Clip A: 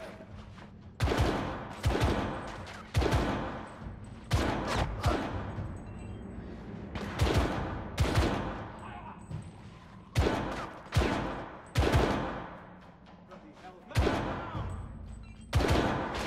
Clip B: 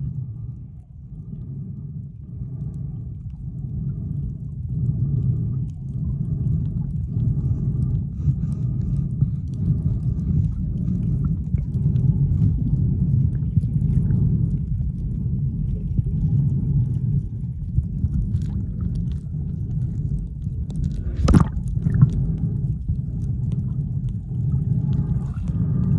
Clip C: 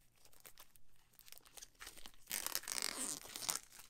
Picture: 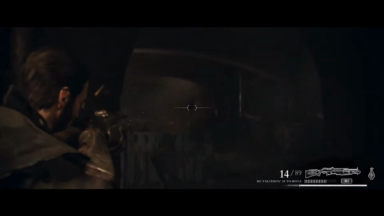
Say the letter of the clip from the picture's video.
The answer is A